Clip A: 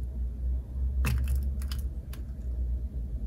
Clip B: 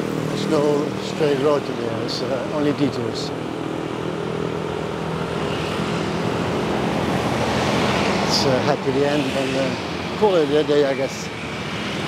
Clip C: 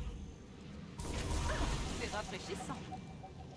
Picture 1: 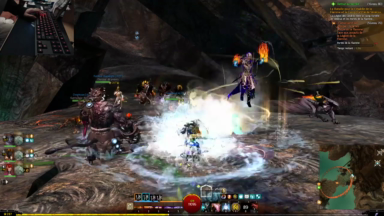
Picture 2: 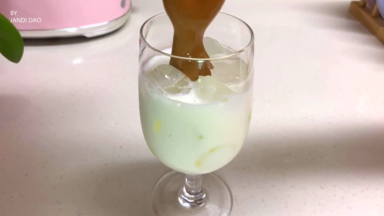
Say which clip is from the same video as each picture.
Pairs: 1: C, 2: A